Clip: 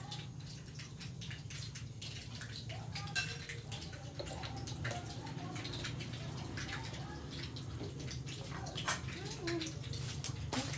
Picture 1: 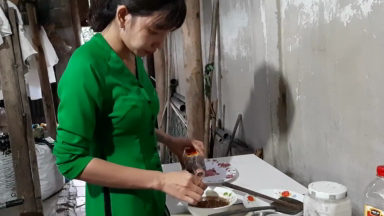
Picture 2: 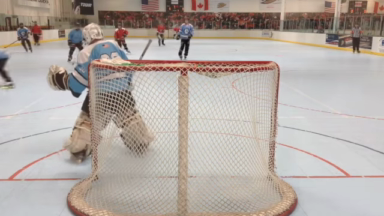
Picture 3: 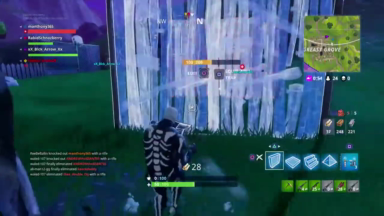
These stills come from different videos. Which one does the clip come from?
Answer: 1